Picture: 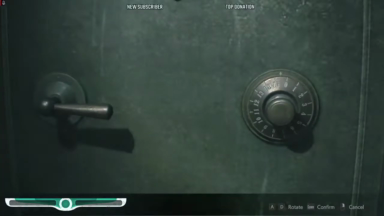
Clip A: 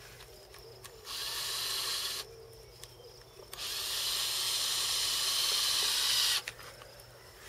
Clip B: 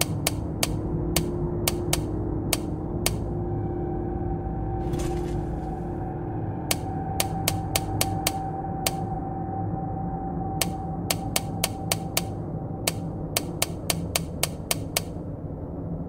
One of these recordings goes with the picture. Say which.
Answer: B